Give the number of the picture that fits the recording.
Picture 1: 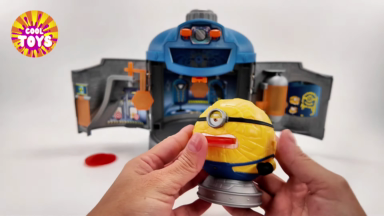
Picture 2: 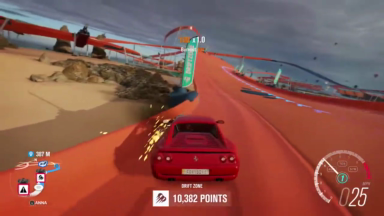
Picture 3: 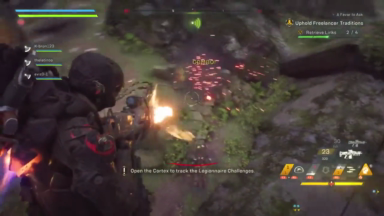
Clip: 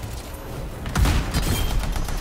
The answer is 3